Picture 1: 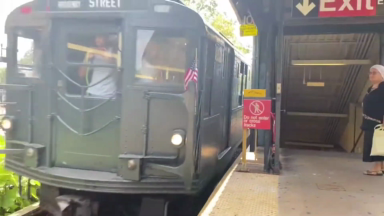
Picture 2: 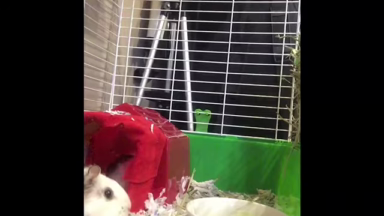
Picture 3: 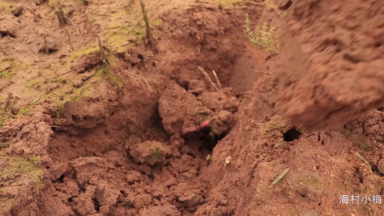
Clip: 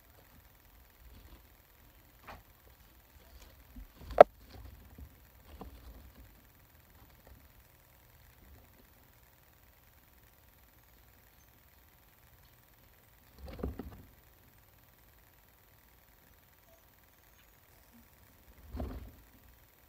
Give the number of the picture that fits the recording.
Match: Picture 2